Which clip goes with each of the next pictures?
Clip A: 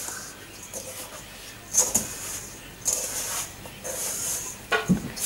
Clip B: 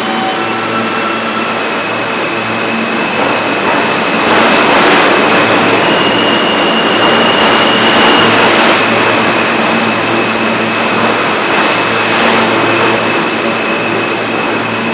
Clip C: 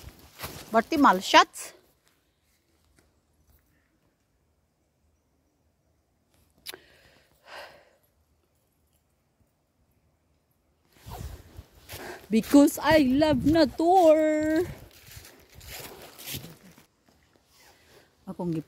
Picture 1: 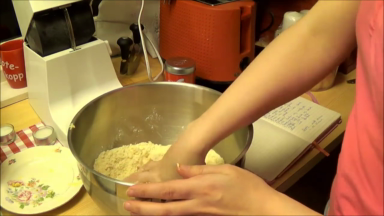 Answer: A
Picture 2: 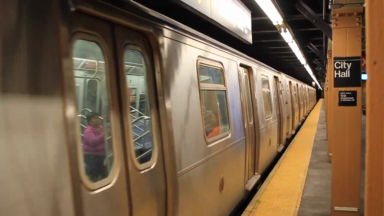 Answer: B